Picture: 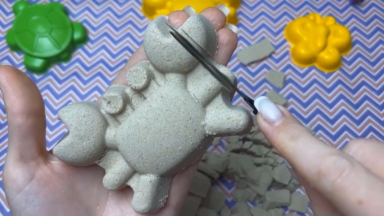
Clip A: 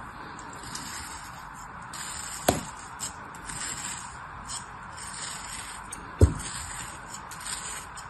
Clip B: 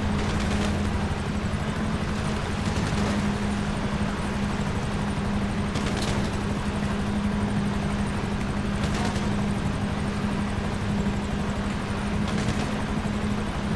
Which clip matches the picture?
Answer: A